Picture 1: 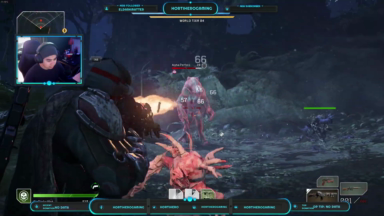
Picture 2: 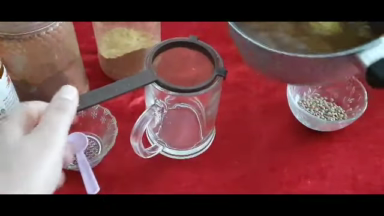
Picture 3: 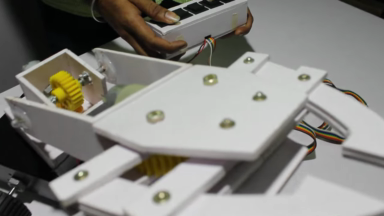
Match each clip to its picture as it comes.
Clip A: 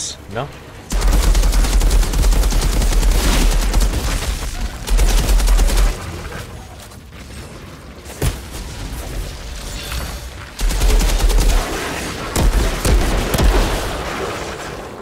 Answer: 1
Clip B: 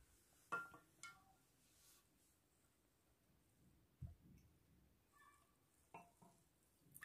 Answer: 2